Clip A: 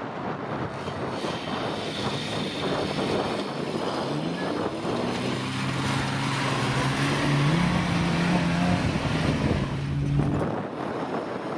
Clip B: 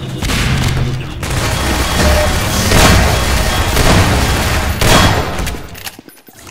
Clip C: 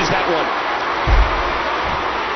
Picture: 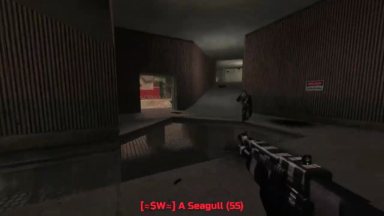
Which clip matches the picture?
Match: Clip B